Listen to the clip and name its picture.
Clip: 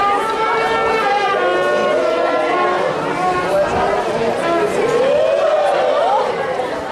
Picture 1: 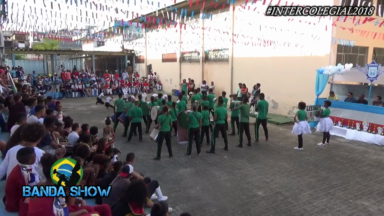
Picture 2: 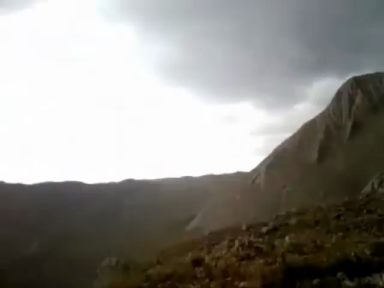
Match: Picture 1